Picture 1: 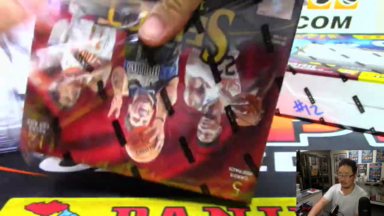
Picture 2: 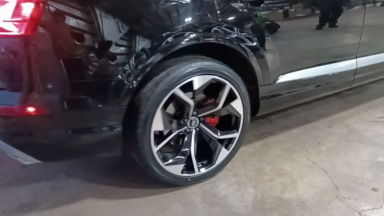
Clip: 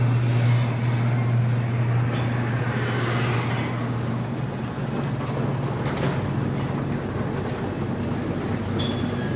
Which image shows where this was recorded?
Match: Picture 2